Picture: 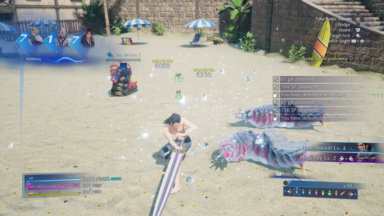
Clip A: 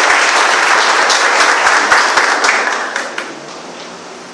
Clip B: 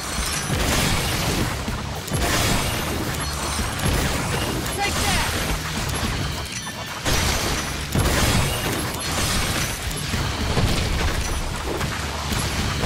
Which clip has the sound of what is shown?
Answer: B